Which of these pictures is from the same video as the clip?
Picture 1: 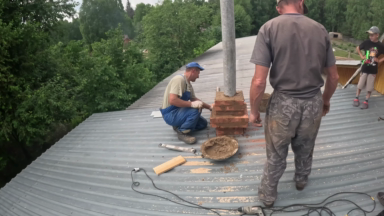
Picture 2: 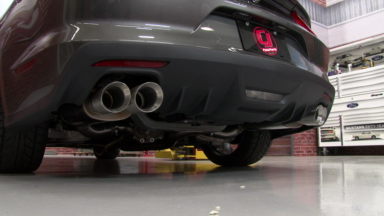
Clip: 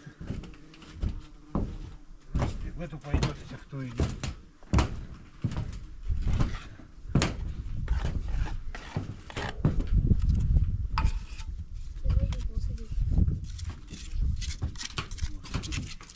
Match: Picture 1